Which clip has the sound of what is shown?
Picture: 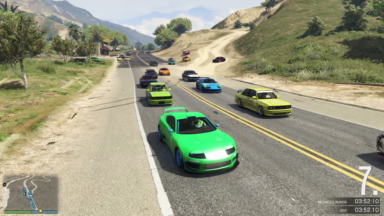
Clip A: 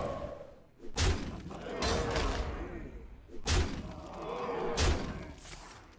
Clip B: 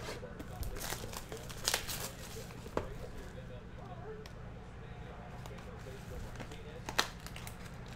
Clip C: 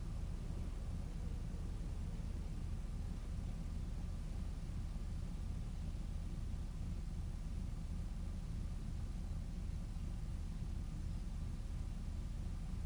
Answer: C